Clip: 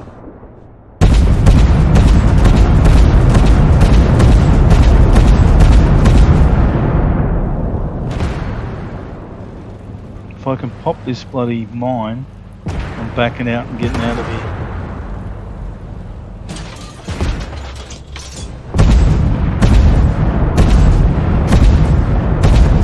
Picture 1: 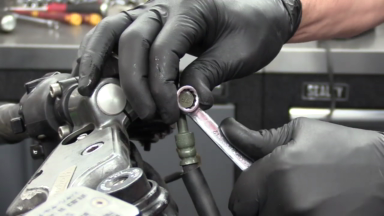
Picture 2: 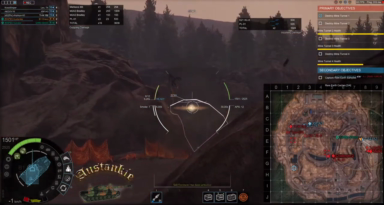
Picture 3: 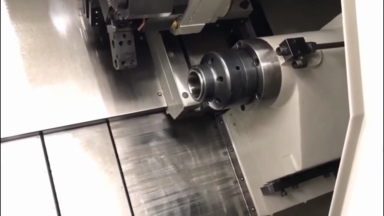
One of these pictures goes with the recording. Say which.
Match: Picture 2